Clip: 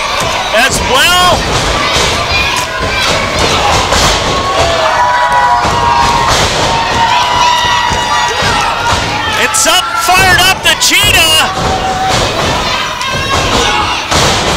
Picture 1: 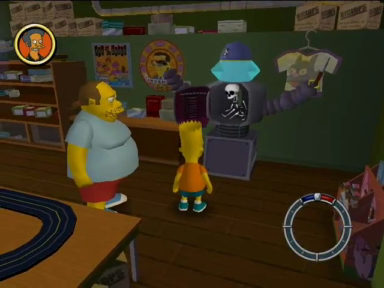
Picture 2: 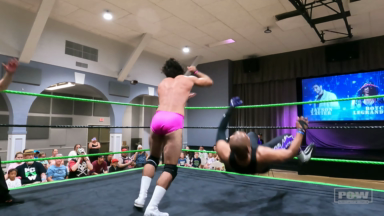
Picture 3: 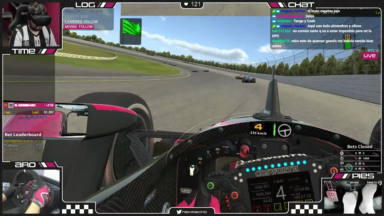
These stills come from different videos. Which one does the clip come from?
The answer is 2